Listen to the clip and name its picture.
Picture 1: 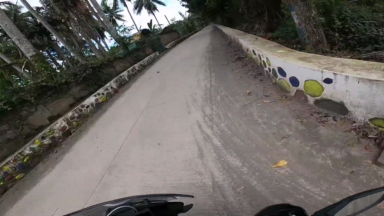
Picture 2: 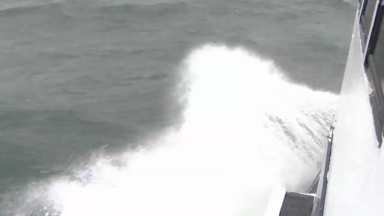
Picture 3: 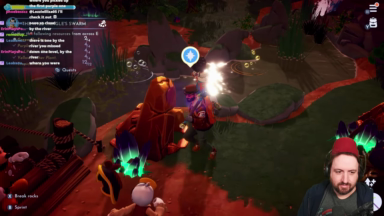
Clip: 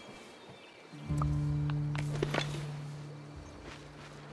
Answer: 3